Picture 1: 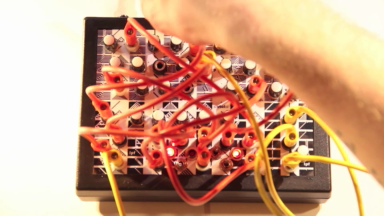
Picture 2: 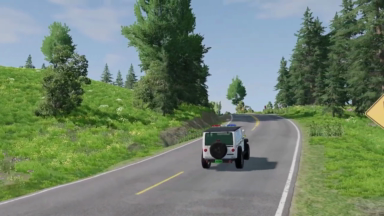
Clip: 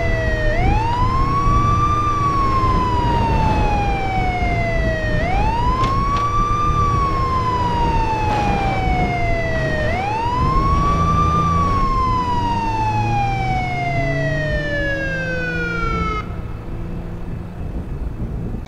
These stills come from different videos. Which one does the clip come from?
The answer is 2